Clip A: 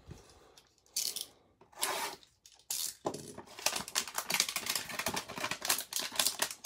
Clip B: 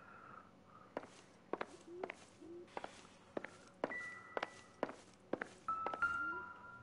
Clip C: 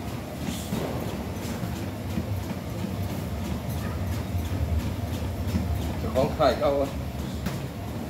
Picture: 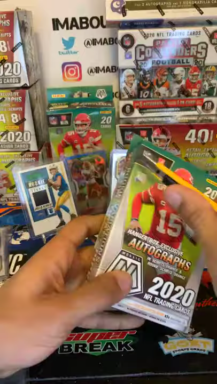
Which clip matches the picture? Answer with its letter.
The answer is A